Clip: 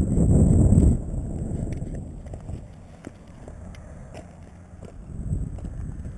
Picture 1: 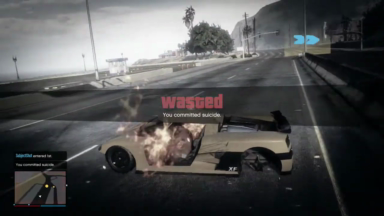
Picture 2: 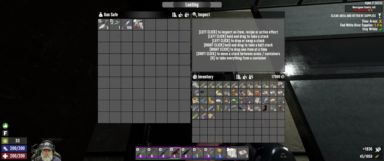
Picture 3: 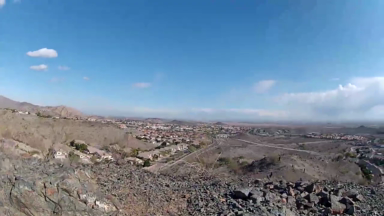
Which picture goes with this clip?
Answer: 3